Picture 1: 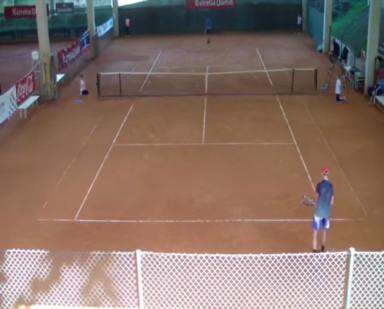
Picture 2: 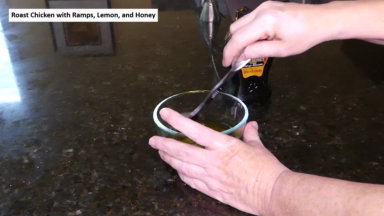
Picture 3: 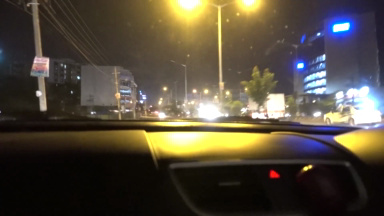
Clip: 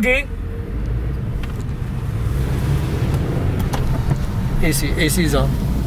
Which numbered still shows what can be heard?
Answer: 3